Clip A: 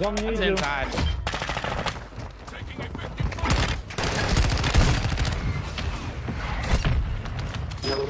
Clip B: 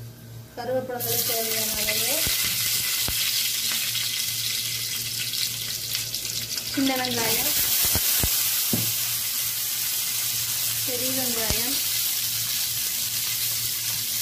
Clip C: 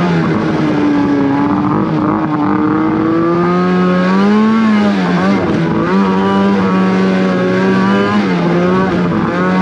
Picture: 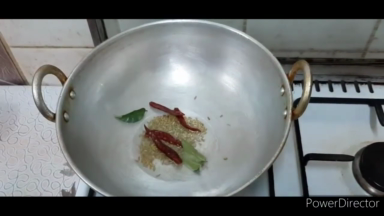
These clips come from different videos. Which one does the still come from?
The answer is B